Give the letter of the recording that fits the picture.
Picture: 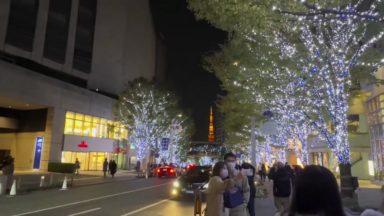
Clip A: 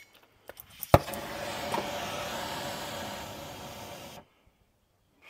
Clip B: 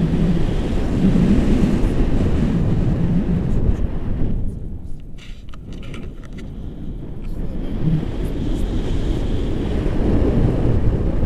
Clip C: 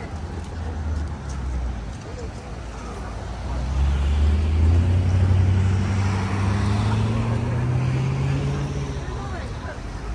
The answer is C